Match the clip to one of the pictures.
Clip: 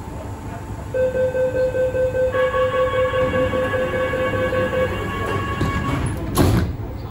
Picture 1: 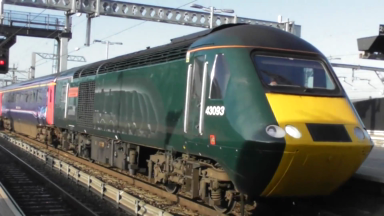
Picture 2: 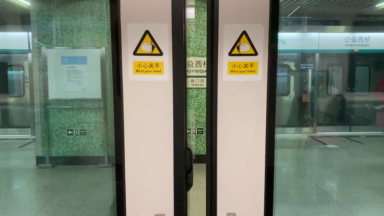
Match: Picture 2